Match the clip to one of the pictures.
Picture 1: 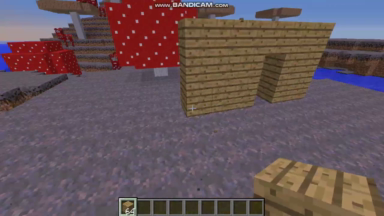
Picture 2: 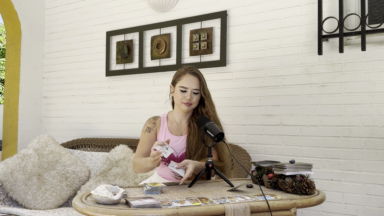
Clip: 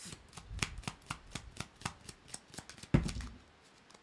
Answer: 2